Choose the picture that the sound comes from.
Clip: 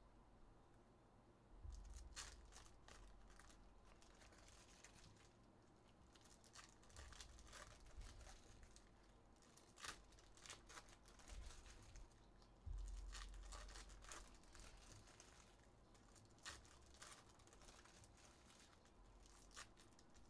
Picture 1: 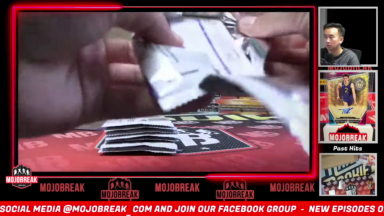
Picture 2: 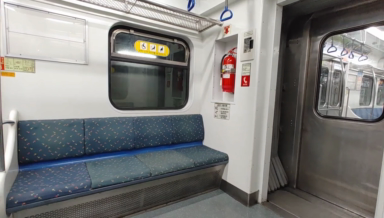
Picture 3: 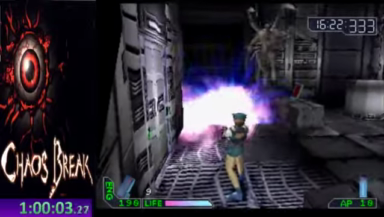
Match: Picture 1